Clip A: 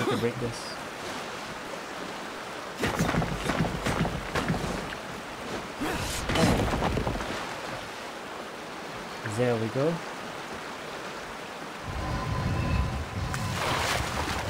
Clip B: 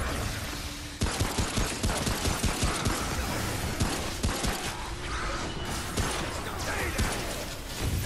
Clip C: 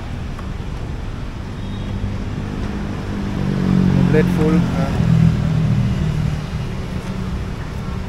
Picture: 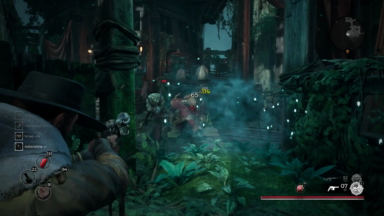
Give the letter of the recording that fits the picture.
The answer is B